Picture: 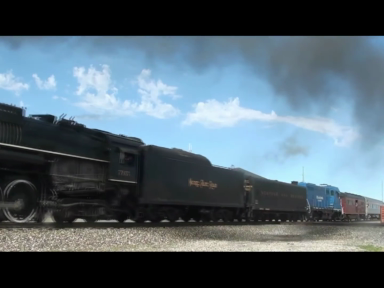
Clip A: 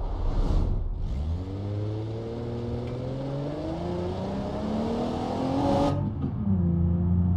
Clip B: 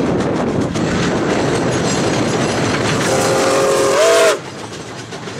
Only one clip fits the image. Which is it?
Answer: B